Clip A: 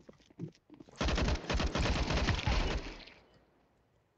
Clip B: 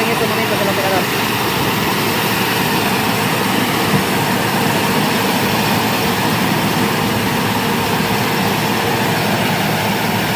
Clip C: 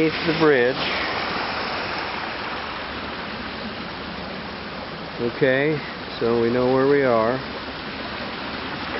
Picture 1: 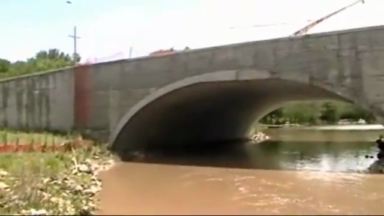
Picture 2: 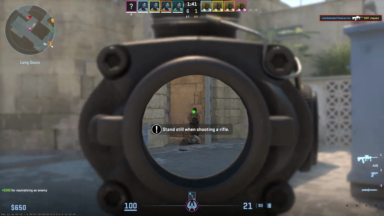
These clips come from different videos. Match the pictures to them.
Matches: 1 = C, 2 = A